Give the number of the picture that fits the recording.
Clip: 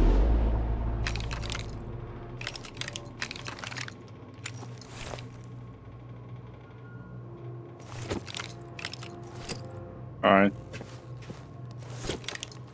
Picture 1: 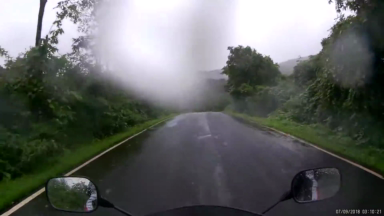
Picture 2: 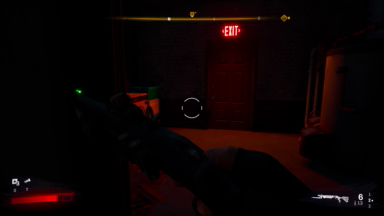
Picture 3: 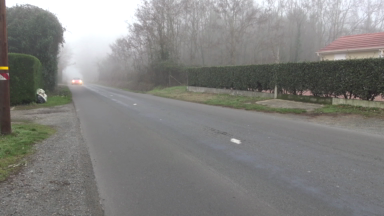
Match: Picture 2